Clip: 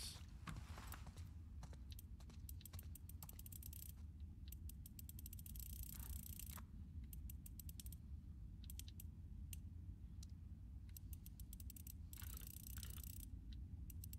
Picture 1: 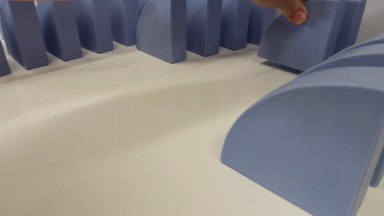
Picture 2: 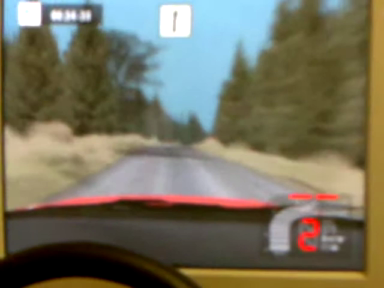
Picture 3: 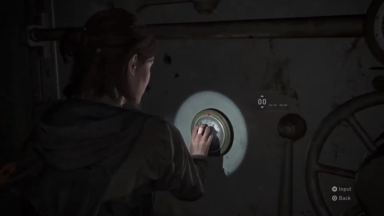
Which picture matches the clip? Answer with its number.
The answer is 3